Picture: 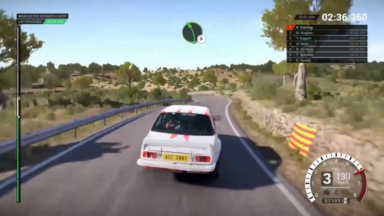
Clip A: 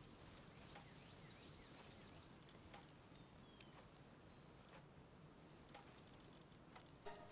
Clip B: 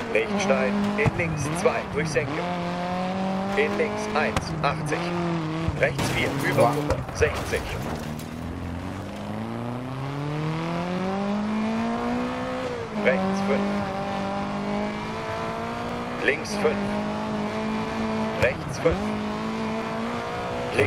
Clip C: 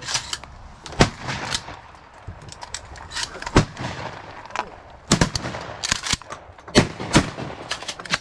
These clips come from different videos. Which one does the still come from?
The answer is B